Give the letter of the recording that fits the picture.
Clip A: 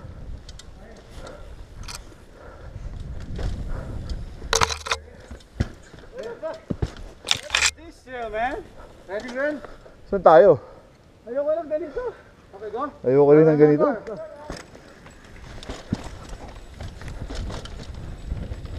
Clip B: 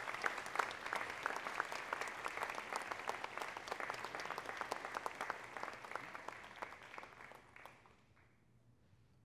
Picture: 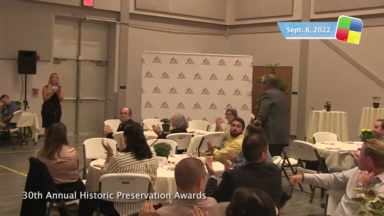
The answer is B